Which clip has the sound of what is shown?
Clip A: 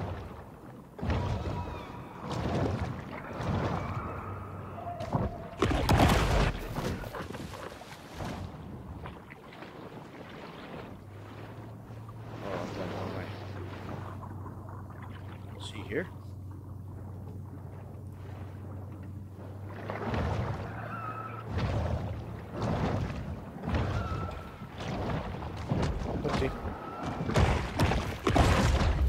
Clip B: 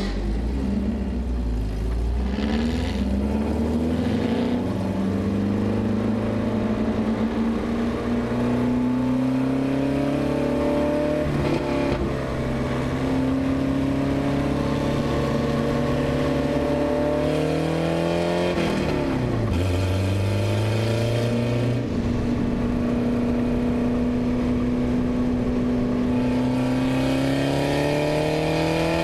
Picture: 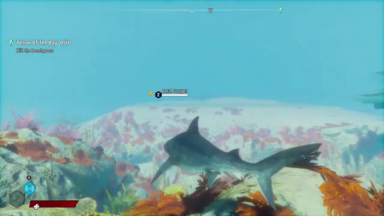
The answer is A